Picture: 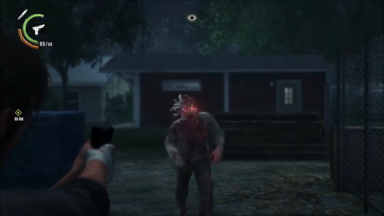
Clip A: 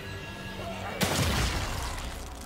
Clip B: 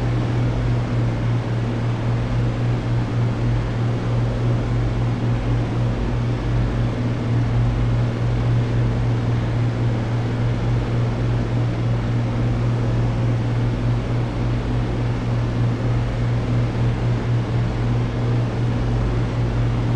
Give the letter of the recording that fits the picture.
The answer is A